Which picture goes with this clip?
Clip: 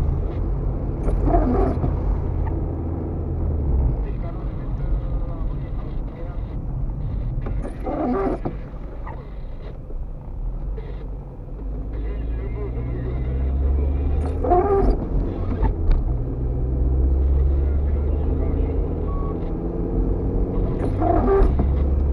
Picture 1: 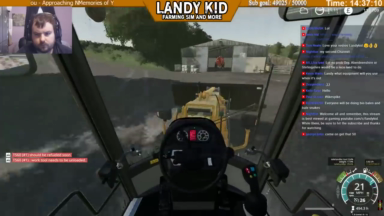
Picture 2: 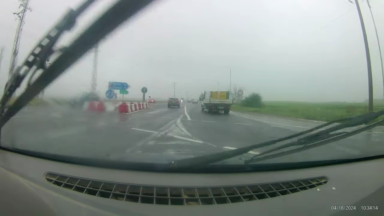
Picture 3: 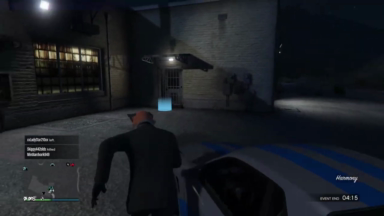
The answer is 2